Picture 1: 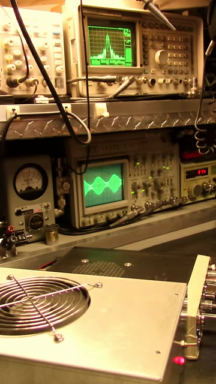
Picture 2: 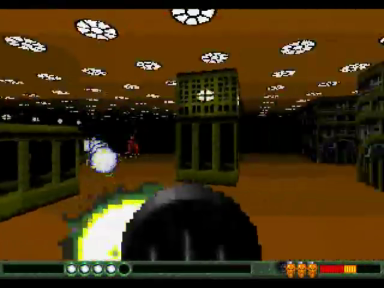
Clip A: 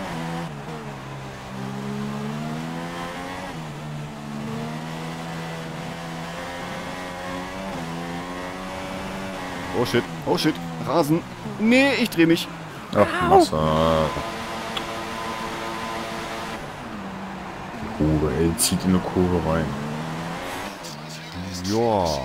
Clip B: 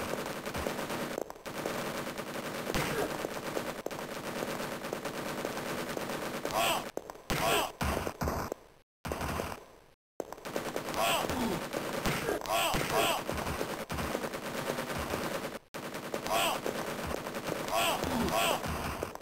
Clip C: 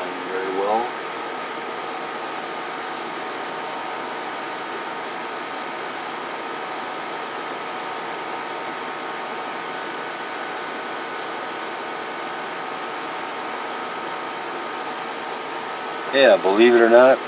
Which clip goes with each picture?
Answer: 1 C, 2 B